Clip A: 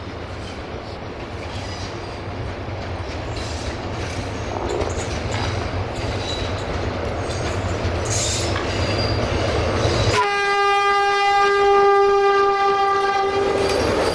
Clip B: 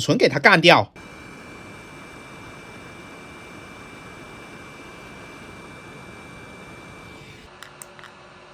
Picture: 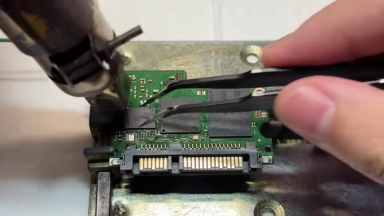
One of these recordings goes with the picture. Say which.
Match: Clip B